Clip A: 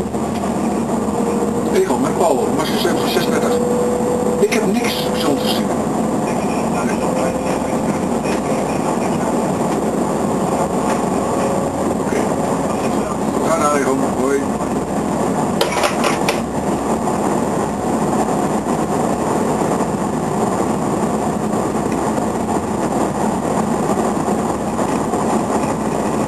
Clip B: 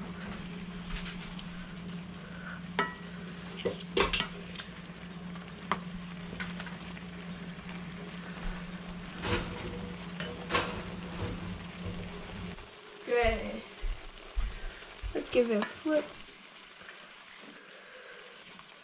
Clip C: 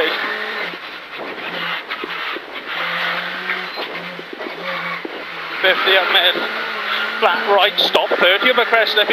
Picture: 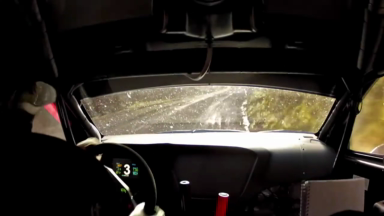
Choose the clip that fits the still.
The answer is C